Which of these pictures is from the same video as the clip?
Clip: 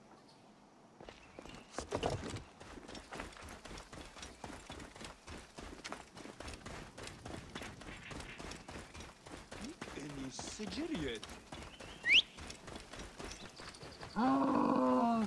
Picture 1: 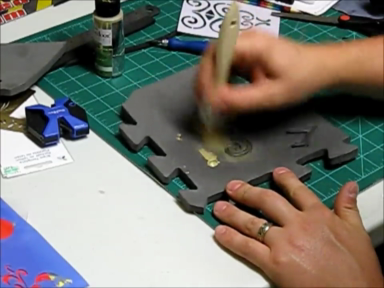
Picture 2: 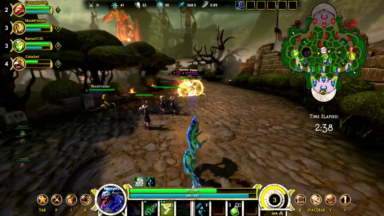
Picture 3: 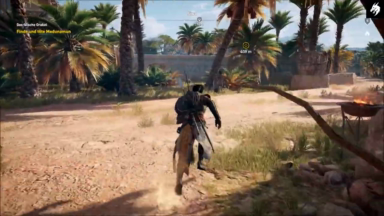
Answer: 3